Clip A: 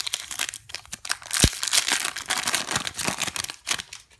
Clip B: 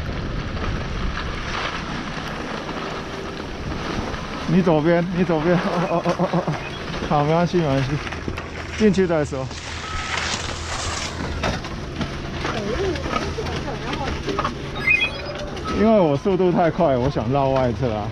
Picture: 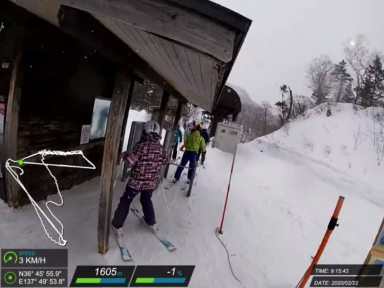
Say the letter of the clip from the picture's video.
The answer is B